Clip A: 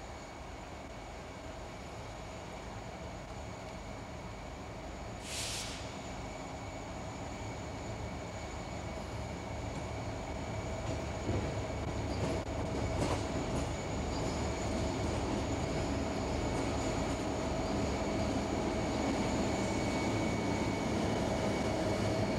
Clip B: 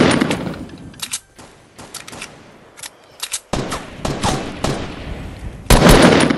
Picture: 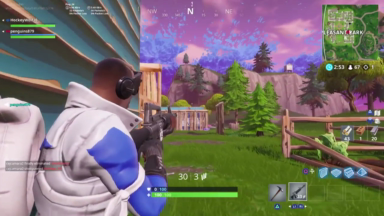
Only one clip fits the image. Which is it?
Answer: B